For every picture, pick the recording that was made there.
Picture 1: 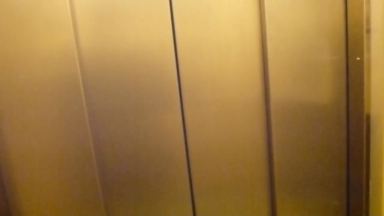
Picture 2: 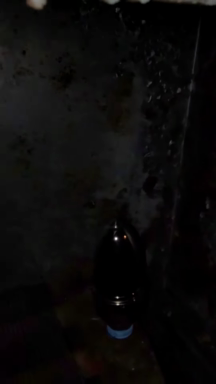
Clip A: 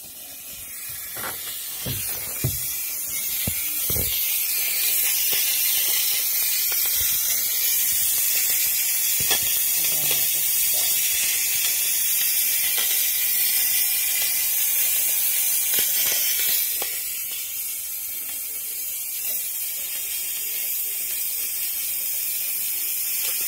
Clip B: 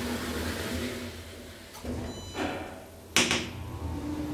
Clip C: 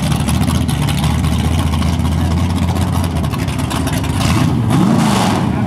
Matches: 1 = B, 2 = A